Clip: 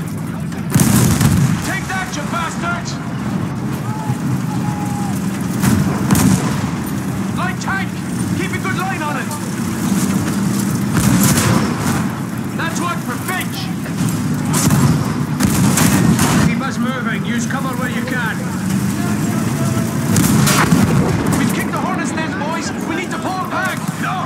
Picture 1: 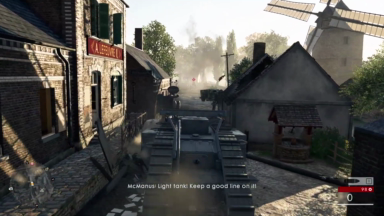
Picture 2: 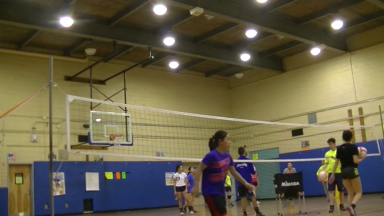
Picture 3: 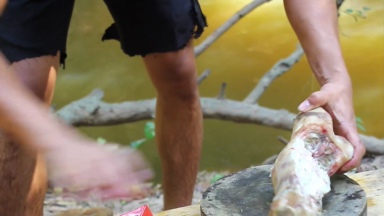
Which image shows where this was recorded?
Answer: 1